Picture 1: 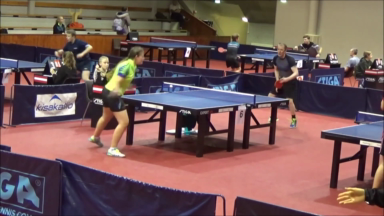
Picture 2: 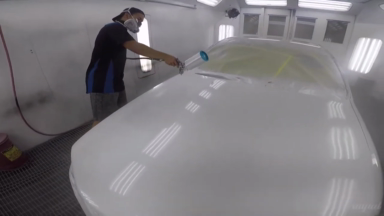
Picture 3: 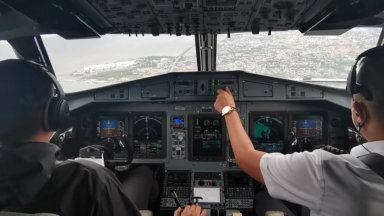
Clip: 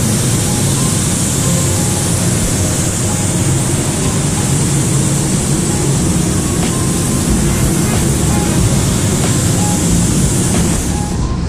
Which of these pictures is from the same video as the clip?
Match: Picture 2